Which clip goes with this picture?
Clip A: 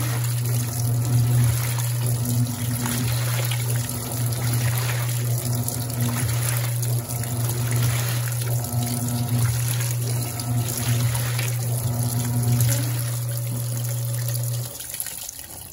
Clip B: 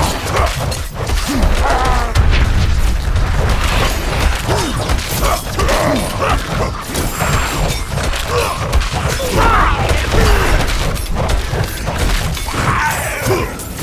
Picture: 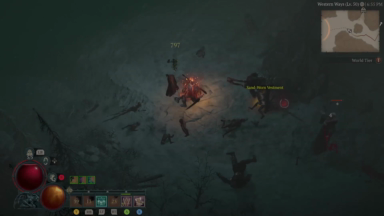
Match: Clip B